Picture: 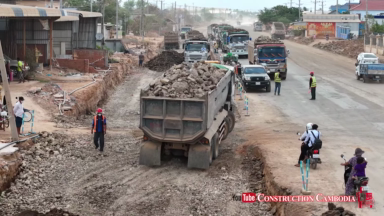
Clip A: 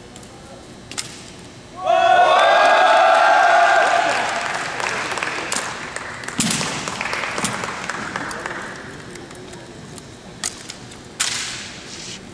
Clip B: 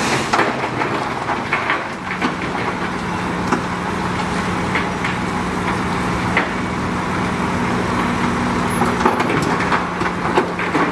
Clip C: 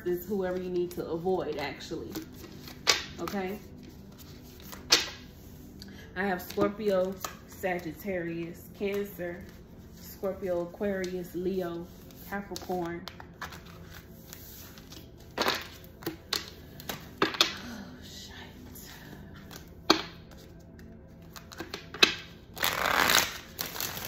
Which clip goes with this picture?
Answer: B